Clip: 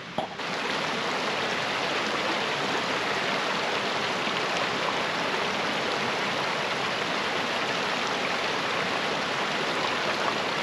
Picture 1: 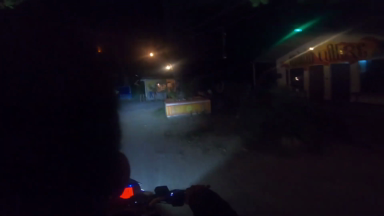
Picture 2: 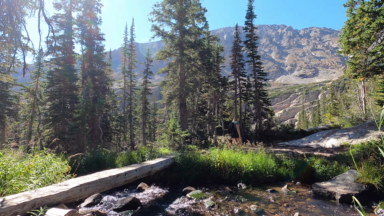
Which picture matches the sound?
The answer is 2